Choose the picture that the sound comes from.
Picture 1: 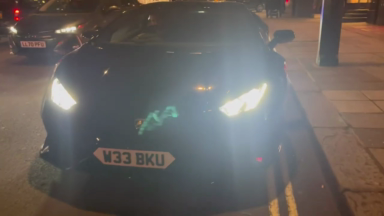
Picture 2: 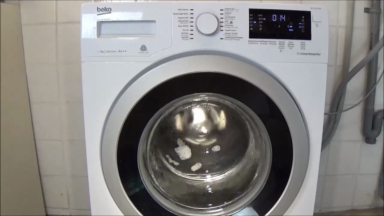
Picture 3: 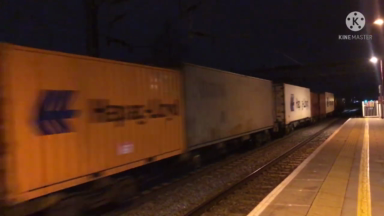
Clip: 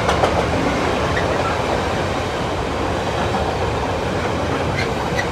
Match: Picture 3